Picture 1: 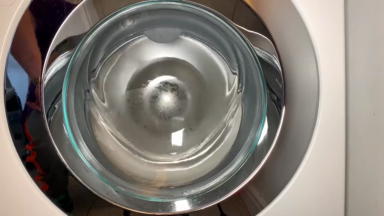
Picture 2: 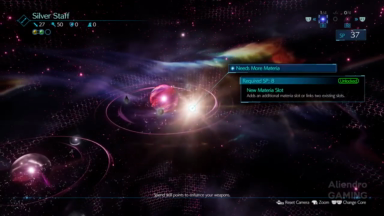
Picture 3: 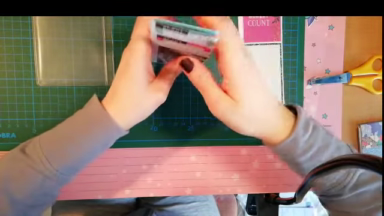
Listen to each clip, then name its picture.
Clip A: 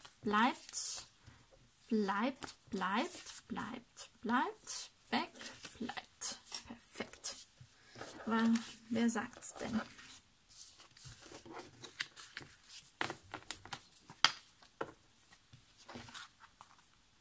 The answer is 3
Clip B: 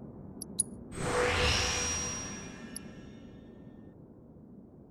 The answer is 2